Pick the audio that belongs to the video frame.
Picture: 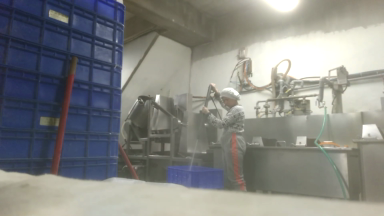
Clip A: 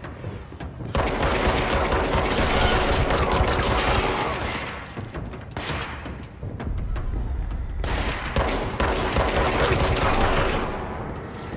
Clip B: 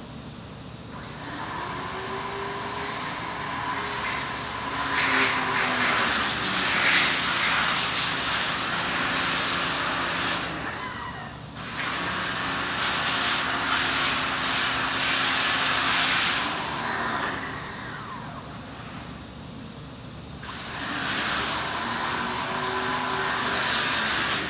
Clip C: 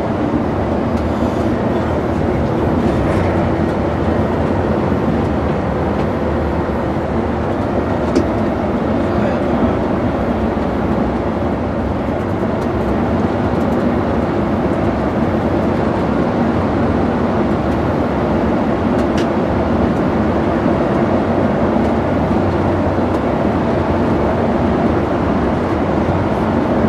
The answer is B